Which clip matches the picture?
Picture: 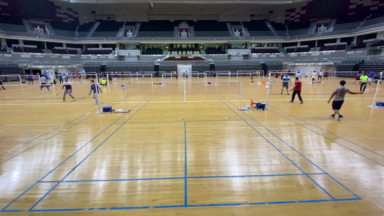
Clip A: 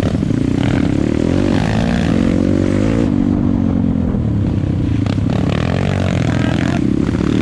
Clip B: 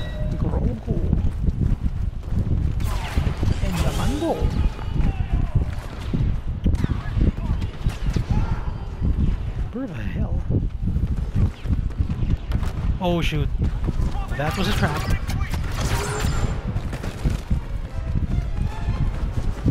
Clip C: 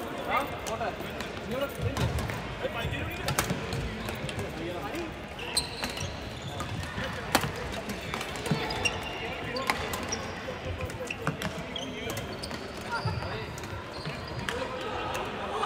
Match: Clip C